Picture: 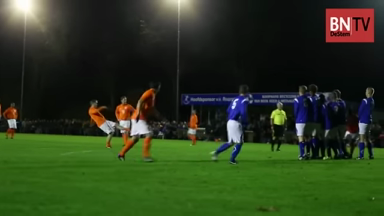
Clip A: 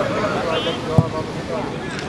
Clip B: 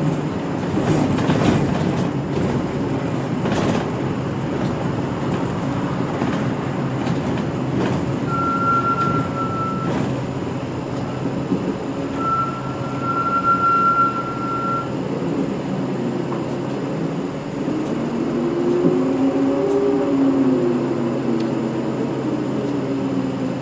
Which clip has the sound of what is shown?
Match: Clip A